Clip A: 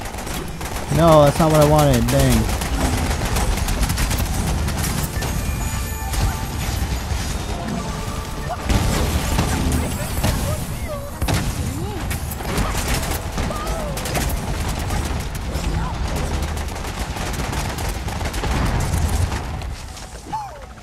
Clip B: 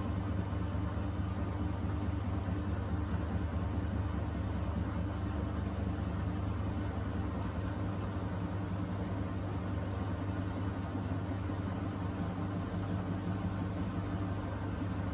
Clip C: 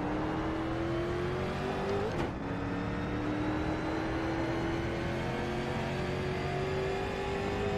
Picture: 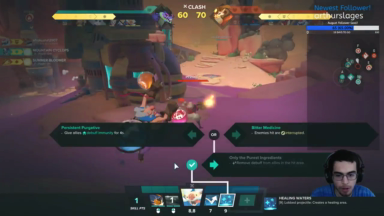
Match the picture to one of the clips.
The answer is A